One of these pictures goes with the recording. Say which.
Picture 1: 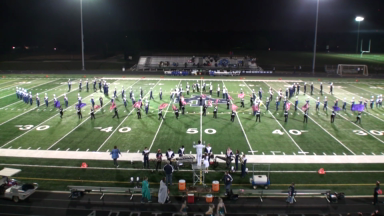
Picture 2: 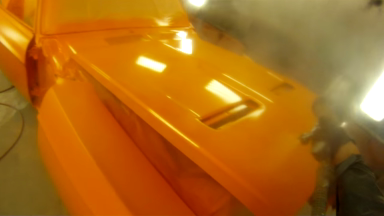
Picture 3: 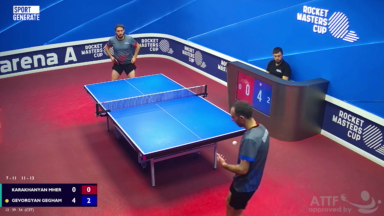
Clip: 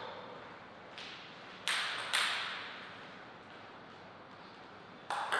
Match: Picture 3